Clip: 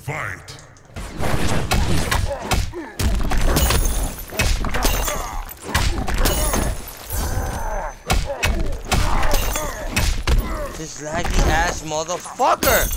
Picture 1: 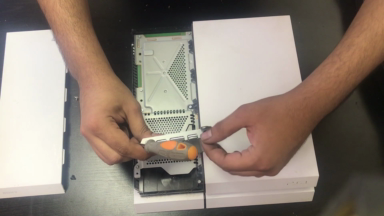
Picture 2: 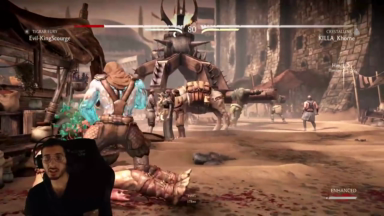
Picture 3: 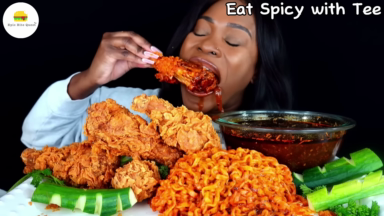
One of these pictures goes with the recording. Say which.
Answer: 2